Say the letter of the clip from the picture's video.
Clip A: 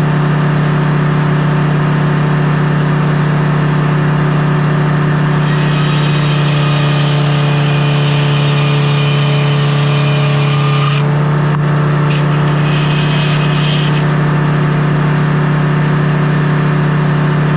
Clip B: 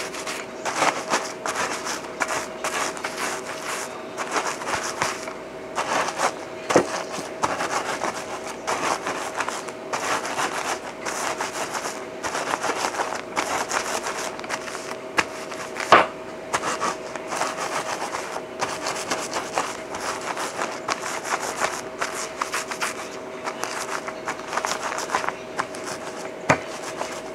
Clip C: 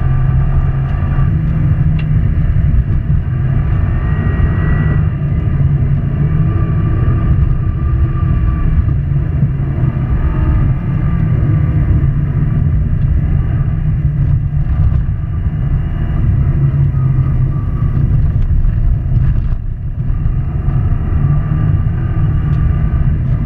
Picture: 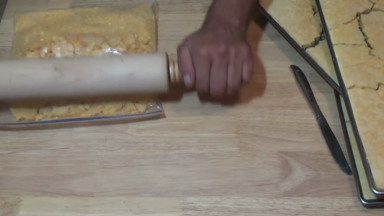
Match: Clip B